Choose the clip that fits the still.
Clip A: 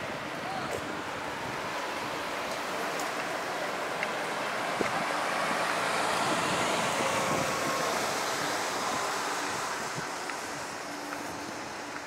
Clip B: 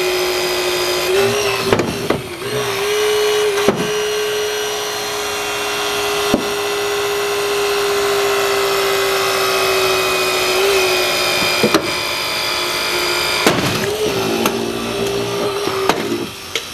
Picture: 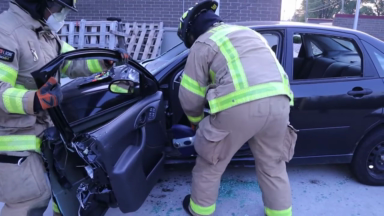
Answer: B